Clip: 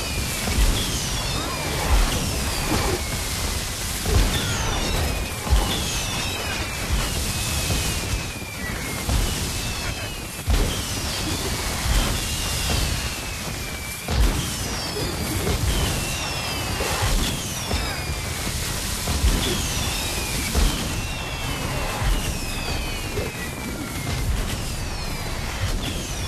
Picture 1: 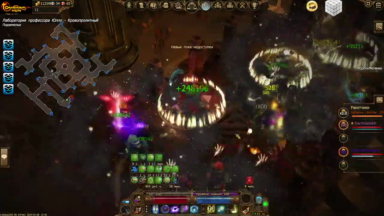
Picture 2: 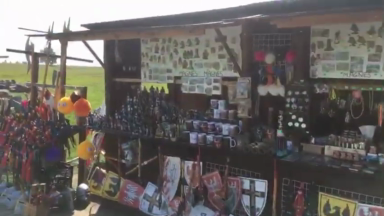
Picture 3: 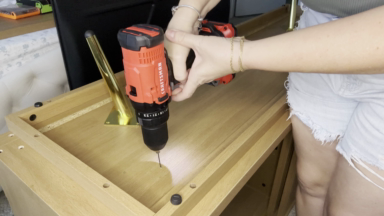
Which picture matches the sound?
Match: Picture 1